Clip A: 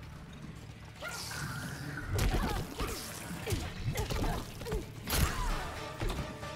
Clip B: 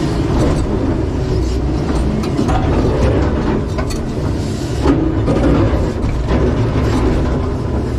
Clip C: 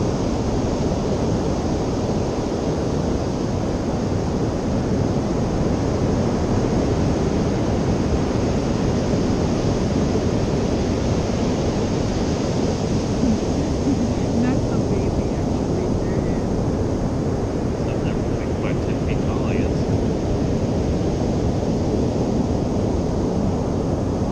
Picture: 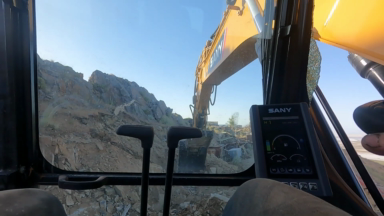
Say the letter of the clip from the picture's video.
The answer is B